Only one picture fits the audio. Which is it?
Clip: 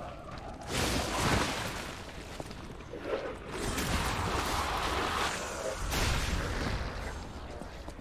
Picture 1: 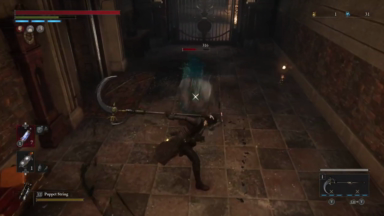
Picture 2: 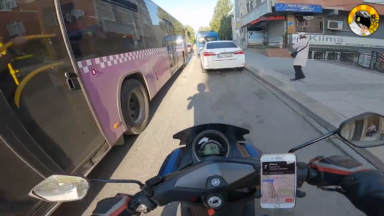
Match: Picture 1